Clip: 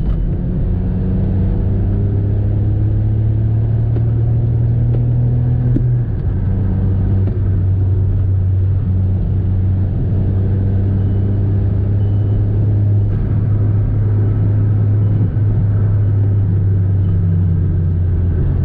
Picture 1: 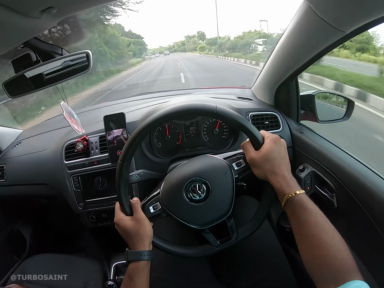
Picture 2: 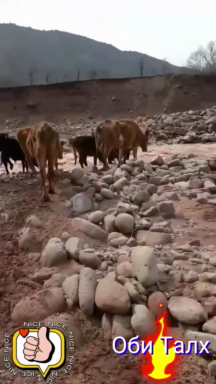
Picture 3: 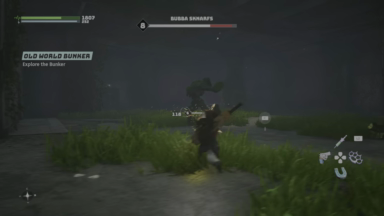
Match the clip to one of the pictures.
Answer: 1